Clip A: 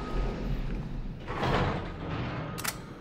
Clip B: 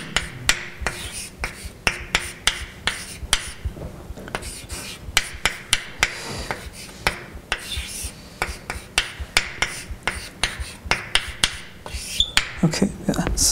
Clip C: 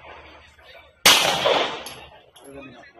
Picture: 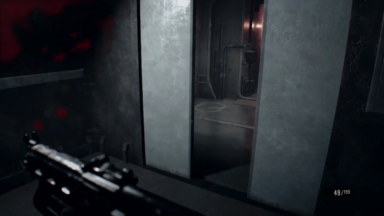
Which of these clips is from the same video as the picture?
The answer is A